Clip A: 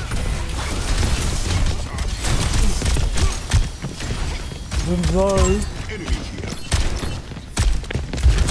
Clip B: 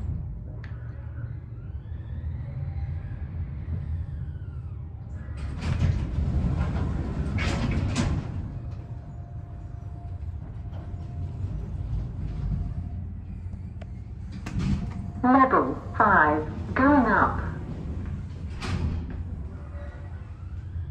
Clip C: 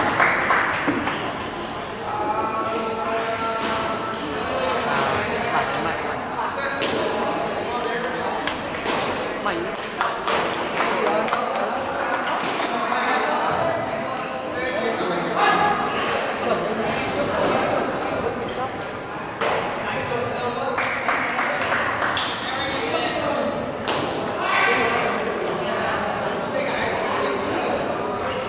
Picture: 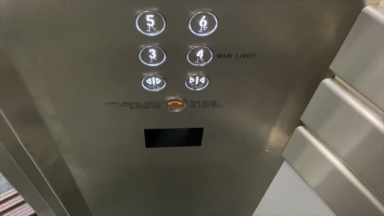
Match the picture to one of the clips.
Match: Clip B